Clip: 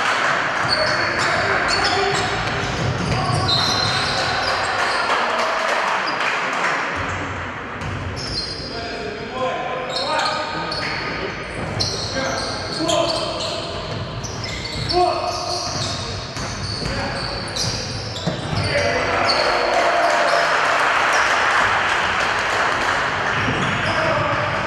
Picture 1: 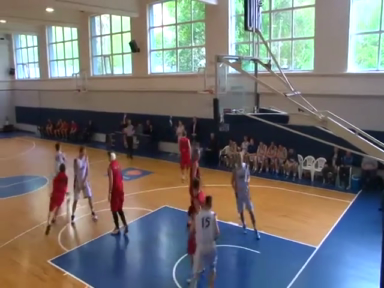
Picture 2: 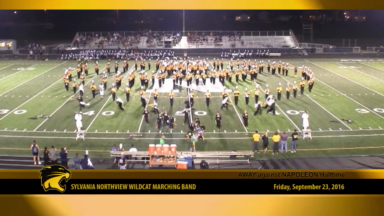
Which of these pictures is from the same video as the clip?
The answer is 1